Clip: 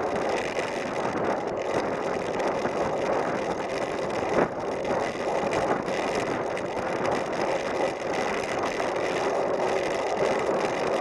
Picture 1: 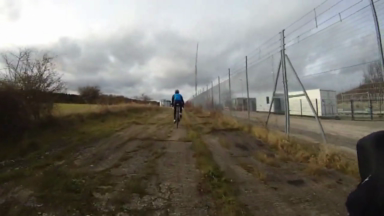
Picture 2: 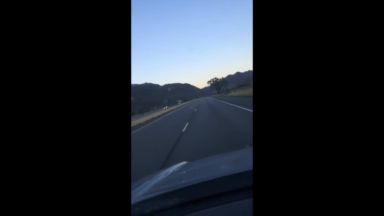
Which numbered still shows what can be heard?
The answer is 1